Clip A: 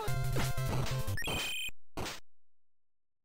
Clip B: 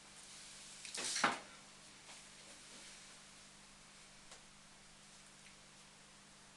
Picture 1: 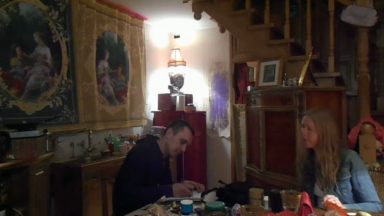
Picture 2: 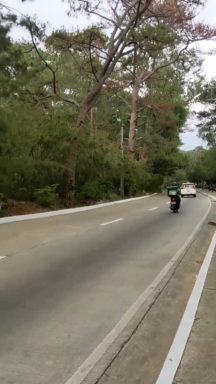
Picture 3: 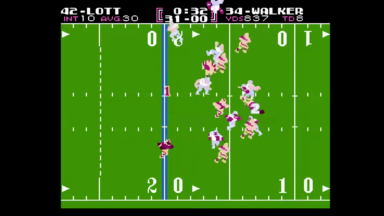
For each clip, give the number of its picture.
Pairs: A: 3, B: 1